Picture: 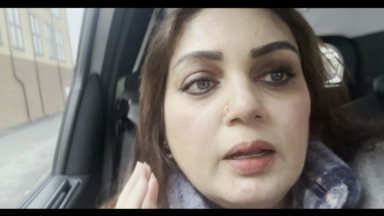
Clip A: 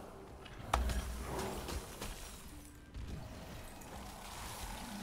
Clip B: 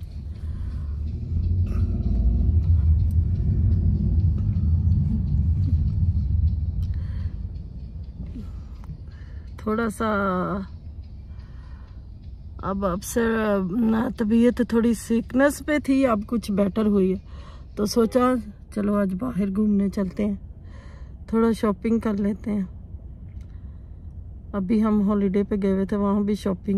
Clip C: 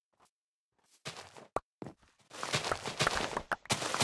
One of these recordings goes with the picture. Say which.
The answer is B